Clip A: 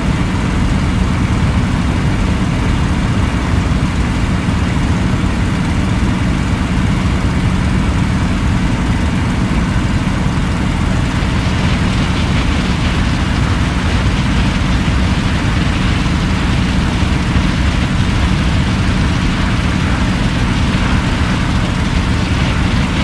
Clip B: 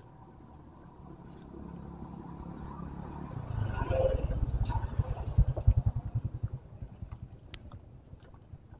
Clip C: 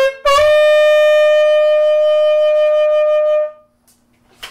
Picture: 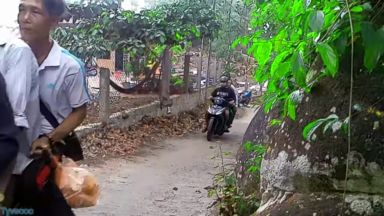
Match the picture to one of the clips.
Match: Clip B